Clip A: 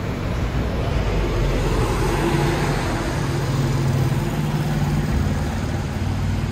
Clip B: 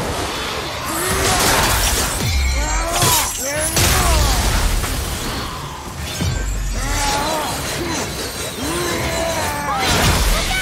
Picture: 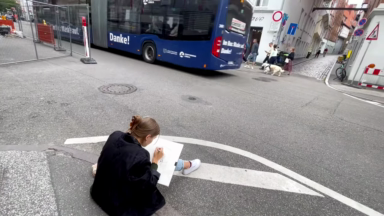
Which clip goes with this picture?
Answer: A